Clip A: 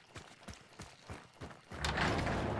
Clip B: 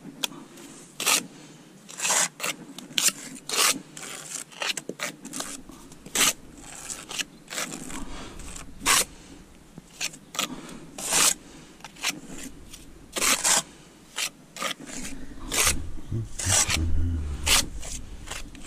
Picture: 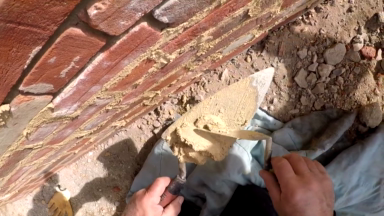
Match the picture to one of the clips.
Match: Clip B